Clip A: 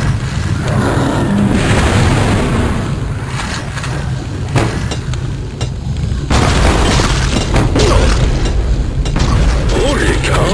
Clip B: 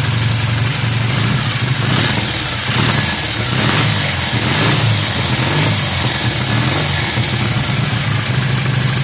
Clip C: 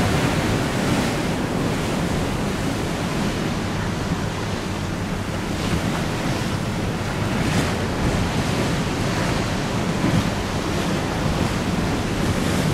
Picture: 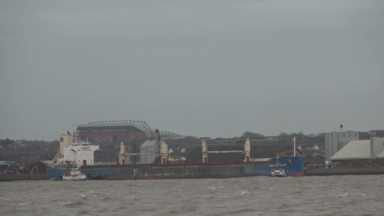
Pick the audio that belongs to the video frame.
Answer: C